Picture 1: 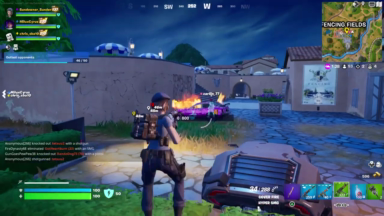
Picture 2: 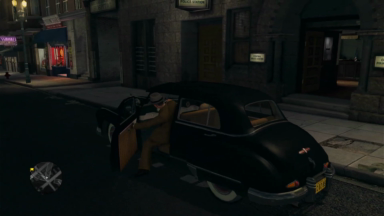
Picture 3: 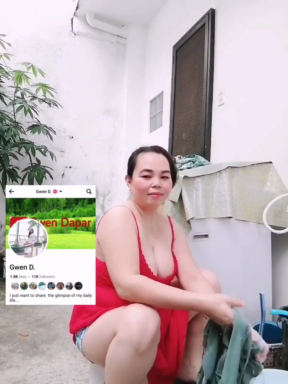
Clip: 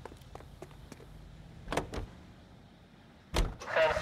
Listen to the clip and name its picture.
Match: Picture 2